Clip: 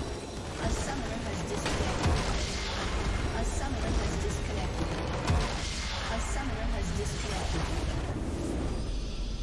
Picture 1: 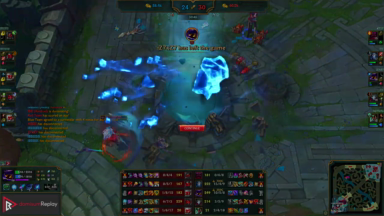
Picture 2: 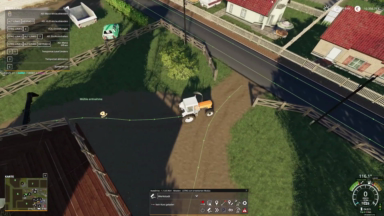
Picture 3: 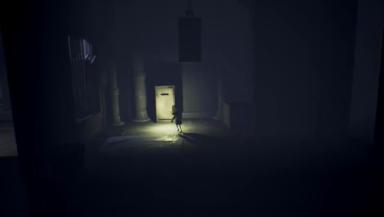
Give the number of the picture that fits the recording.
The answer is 1